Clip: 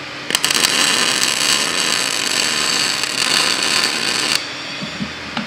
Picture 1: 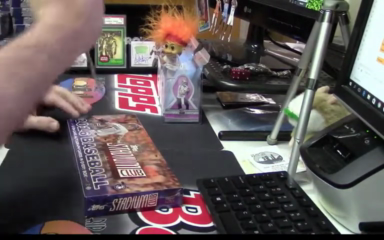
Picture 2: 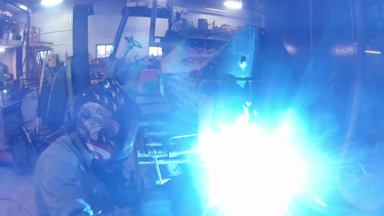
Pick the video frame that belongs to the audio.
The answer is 2